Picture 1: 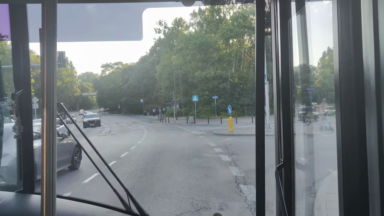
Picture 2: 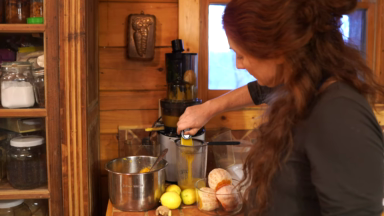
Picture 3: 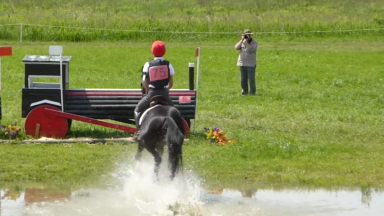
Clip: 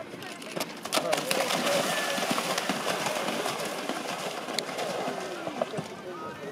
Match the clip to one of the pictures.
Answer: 3